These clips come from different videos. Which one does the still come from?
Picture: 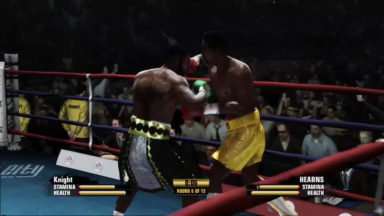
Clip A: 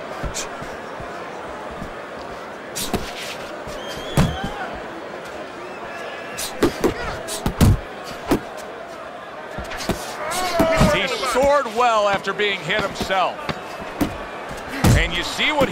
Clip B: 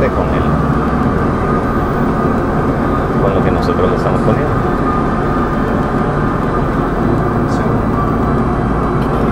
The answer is A